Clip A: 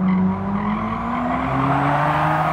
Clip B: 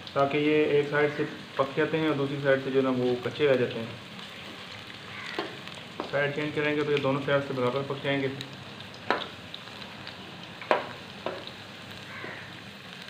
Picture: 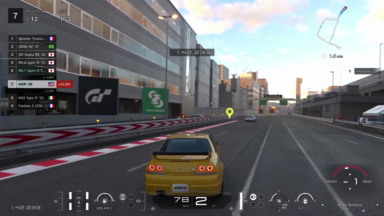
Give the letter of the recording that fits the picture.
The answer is A